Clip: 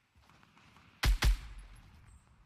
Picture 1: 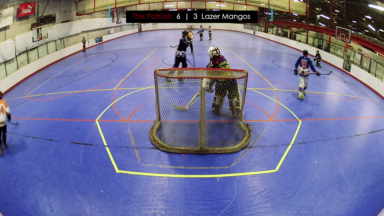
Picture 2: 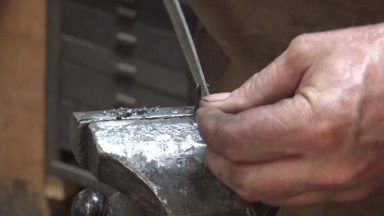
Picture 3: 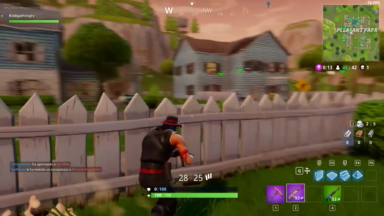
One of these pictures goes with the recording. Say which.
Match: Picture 3